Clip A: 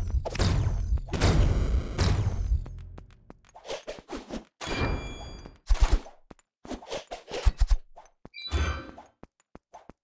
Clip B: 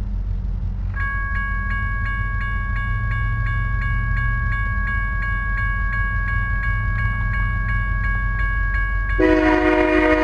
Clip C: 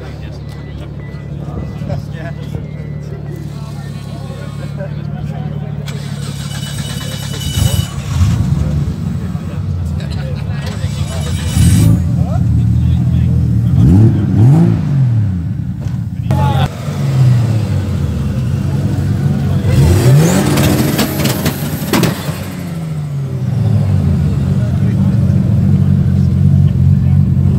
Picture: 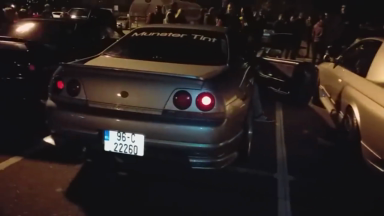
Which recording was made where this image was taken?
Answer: C